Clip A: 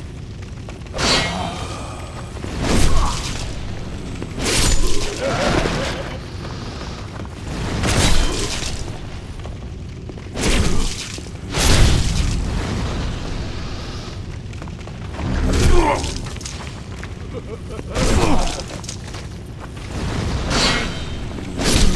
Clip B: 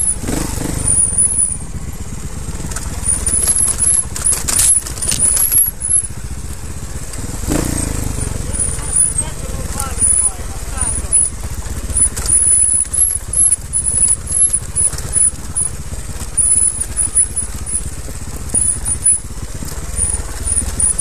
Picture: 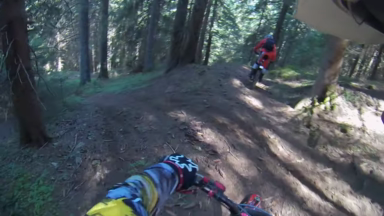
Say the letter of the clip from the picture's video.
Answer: B